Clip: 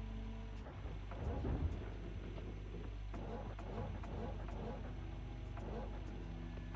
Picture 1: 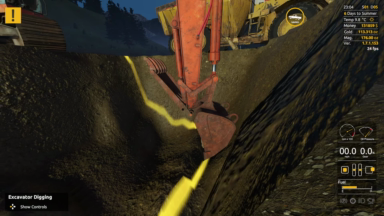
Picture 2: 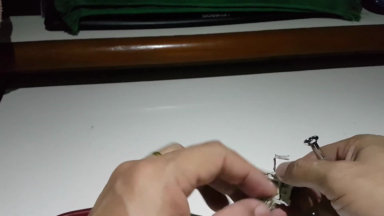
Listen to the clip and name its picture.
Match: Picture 1